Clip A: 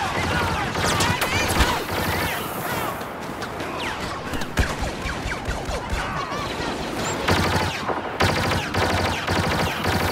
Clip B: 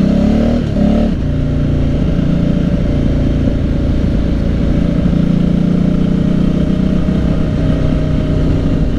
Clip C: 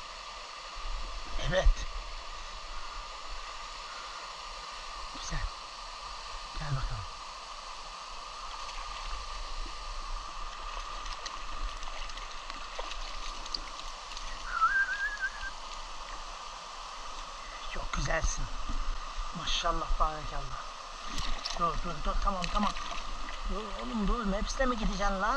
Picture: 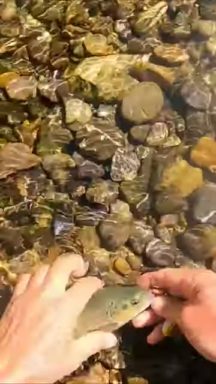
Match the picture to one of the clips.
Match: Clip C